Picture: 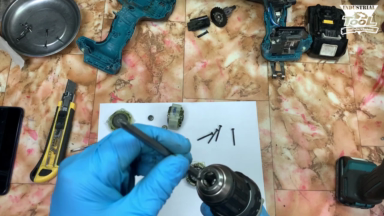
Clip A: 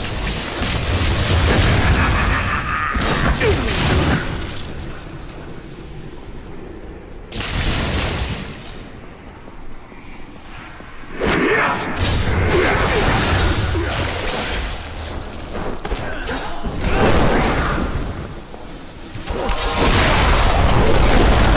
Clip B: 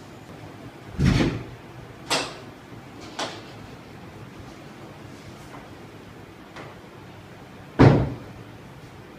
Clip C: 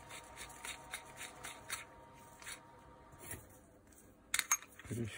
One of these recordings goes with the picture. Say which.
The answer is C